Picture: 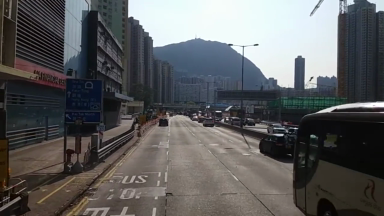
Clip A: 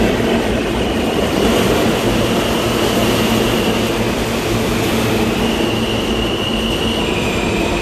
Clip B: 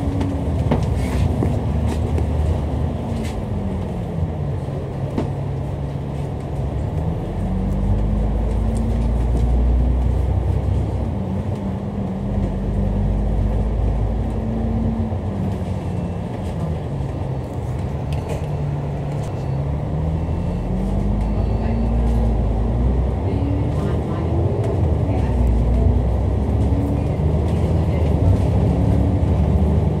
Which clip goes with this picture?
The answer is B